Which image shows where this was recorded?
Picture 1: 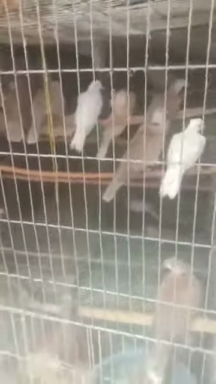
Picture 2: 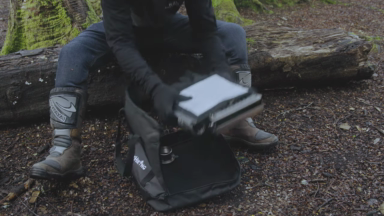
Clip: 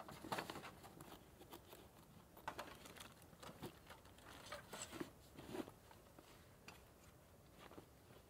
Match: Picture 2